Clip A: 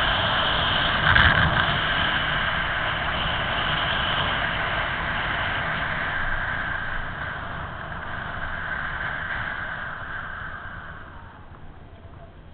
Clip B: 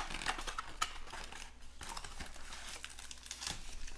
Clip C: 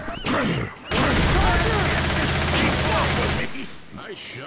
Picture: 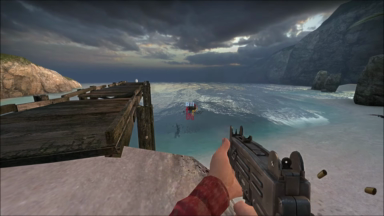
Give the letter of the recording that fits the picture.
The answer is C